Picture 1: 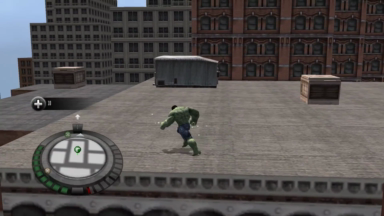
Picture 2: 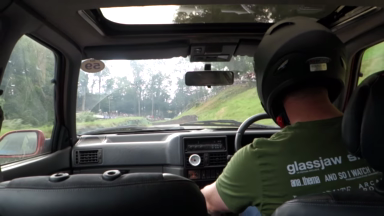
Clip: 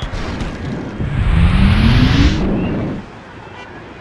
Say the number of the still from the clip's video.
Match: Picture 1